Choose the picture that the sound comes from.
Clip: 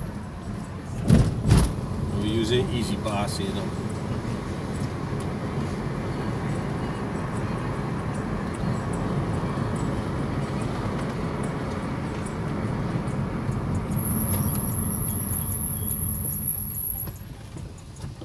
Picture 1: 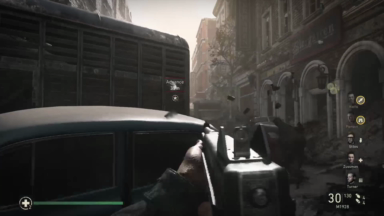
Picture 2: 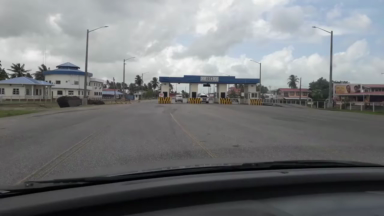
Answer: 2